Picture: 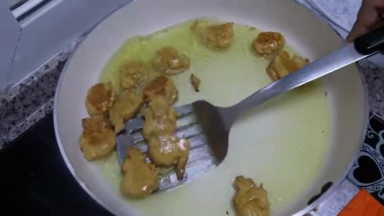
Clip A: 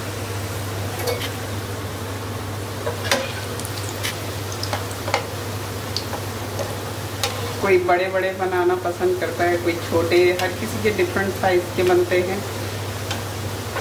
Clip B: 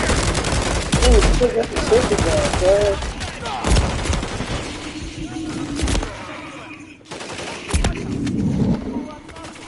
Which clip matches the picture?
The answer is A